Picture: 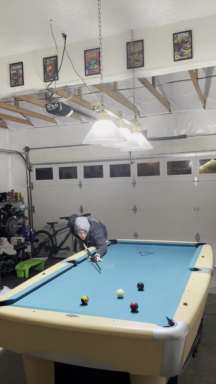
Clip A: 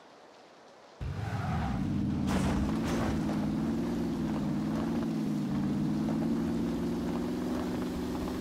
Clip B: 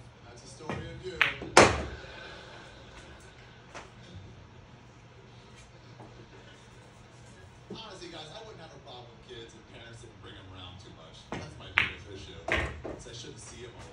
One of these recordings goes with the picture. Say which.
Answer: B